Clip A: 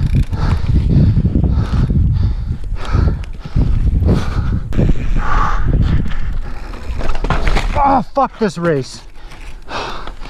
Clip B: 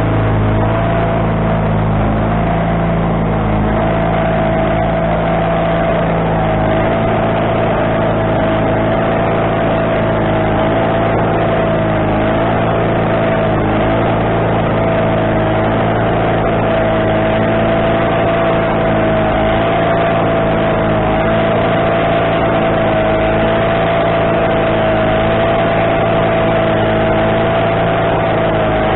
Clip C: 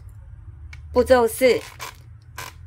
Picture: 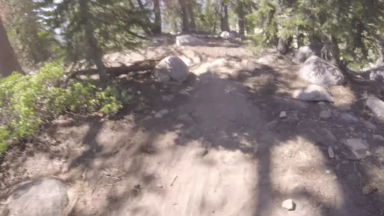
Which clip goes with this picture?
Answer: A